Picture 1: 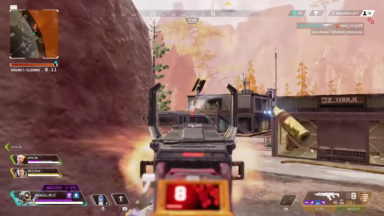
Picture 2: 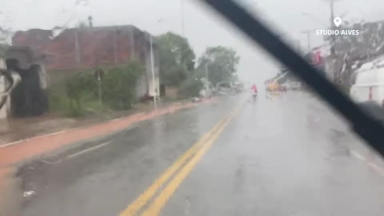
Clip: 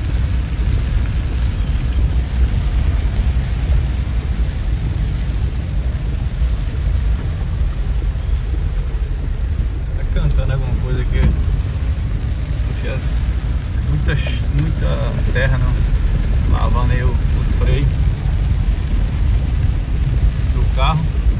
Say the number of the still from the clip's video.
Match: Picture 2